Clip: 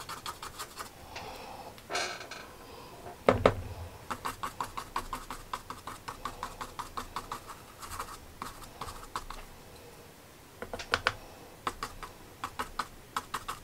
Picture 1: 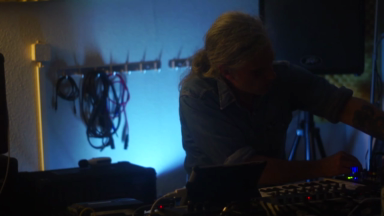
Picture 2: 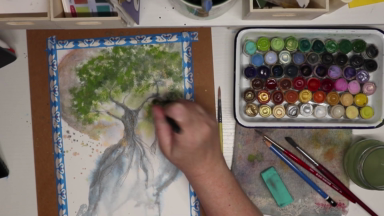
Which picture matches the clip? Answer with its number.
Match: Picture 2